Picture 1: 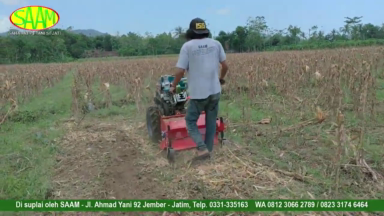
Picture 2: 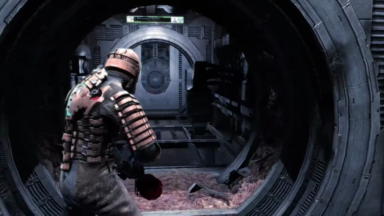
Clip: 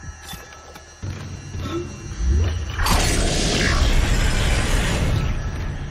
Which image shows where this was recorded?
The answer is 2